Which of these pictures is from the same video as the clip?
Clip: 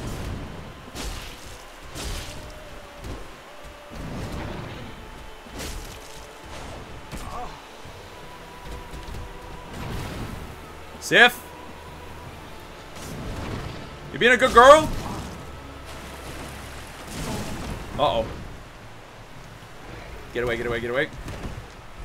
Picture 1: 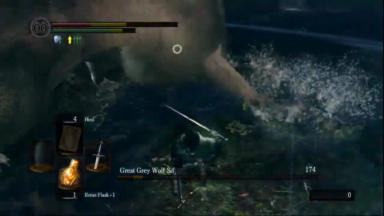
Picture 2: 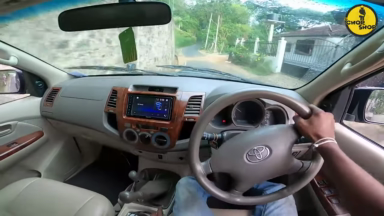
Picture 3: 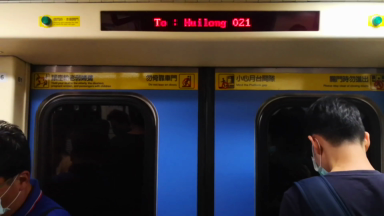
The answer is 1